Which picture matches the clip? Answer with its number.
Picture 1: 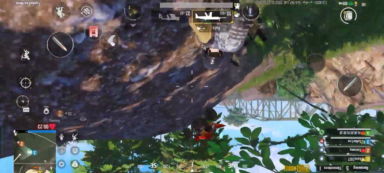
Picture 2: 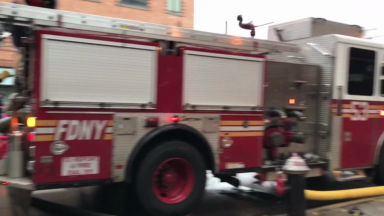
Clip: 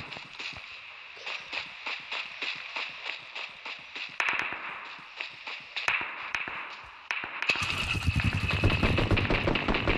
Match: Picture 1